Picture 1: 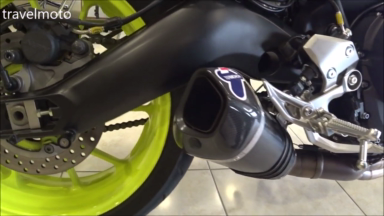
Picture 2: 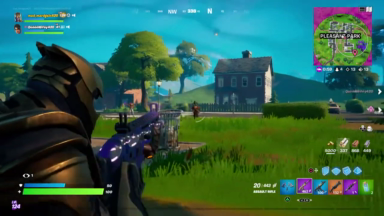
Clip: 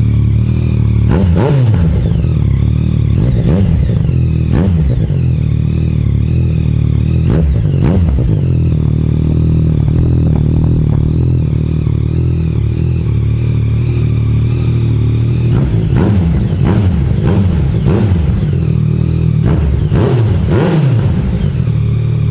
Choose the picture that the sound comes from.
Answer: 1